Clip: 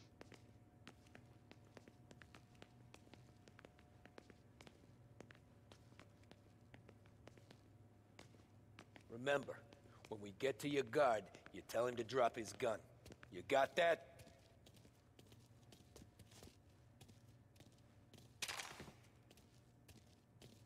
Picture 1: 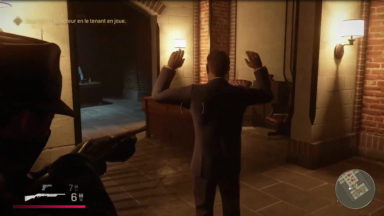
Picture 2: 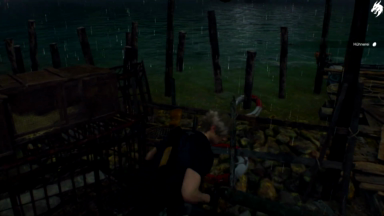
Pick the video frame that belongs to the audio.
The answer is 1